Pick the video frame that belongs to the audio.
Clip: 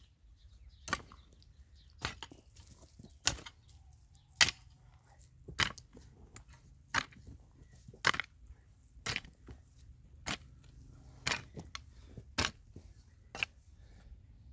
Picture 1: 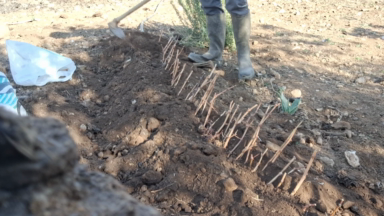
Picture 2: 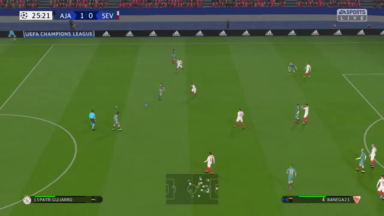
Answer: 1